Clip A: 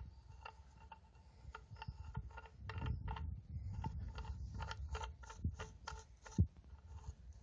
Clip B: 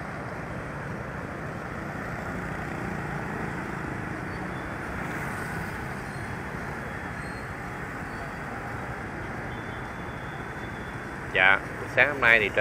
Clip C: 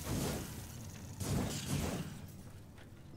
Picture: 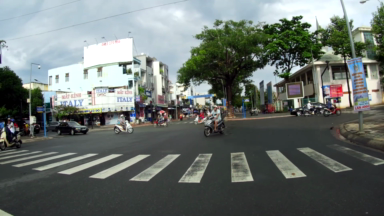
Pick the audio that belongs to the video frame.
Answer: B